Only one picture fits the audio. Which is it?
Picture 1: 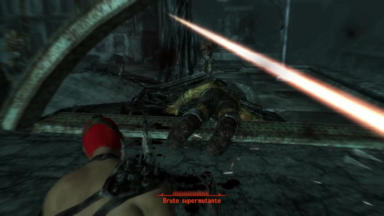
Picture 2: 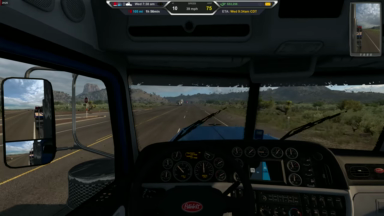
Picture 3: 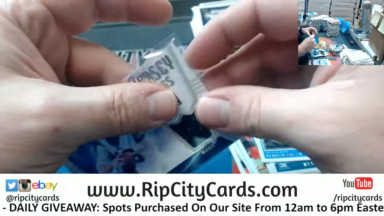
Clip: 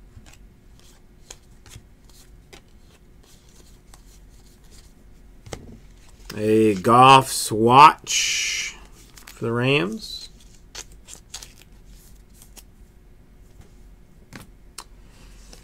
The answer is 3